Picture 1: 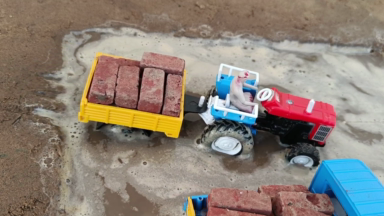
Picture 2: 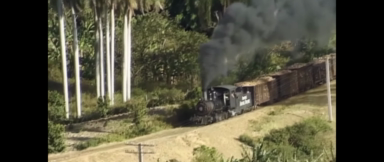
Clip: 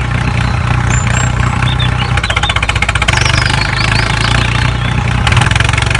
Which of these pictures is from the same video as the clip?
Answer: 1